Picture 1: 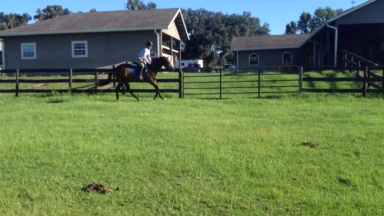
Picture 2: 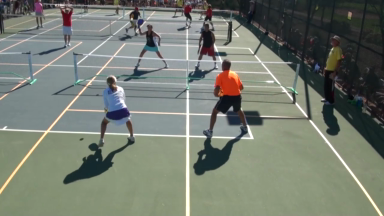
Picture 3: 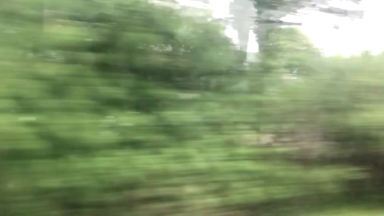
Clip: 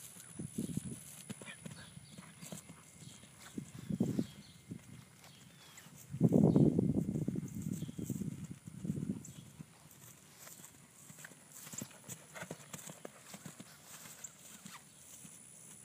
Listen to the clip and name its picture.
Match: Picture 1